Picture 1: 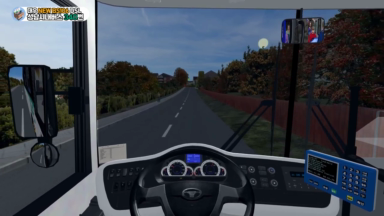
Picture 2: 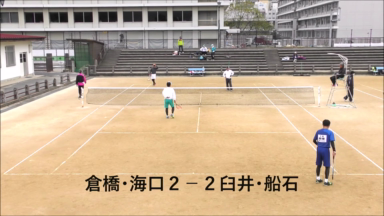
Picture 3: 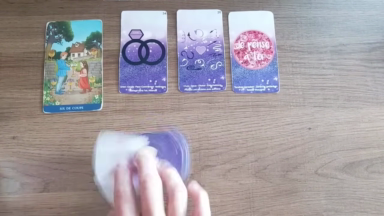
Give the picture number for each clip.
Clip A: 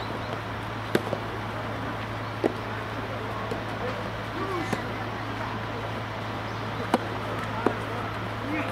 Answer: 2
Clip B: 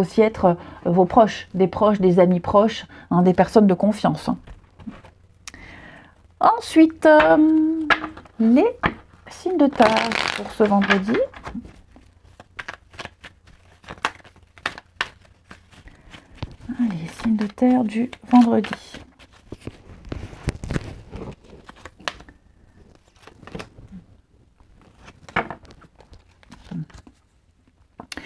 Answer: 3